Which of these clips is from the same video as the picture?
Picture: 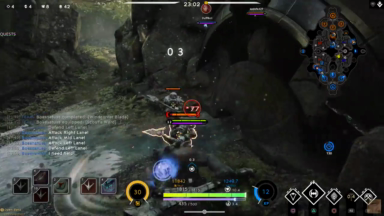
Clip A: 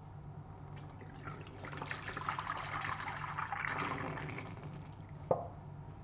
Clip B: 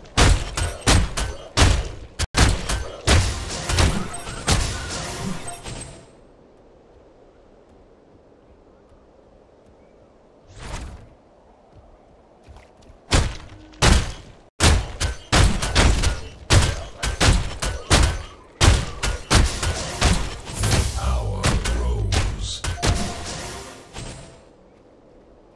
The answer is B